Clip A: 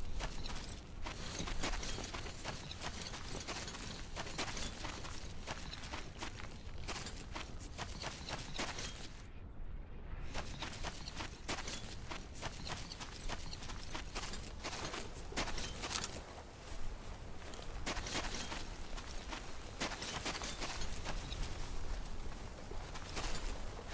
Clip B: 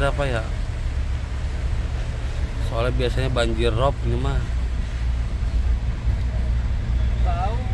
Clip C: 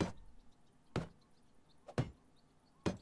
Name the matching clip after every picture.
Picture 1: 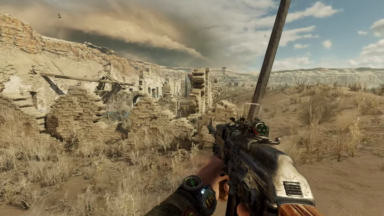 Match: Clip A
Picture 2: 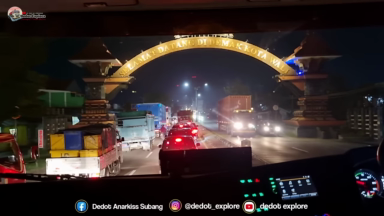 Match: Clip B